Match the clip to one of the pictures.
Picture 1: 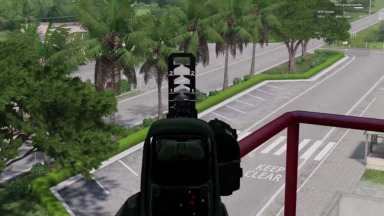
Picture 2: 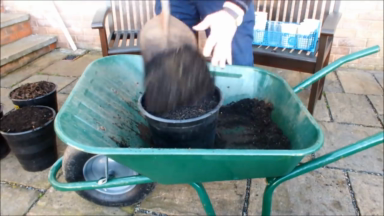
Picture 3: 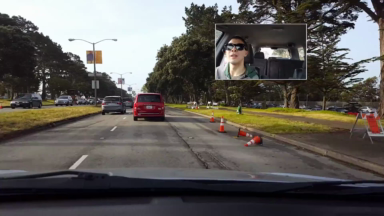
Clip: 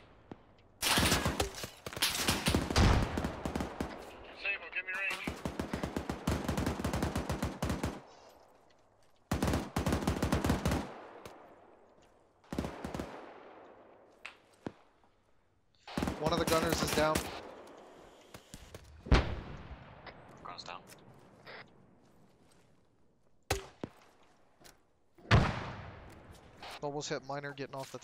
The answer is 1